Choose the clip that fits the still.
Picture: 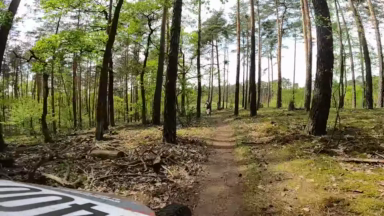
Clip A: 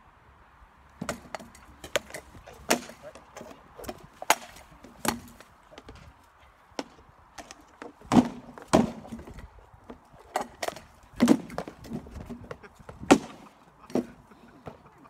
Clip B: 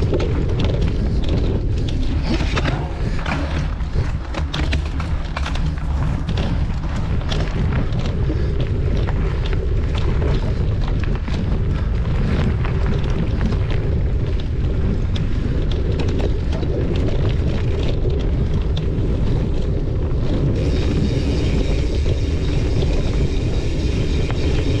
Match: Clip B